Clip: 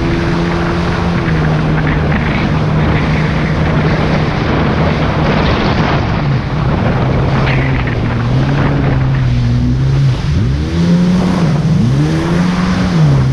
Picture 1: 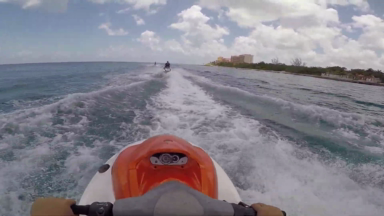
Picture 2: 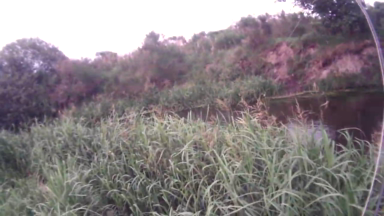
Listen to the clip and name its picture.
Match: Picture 1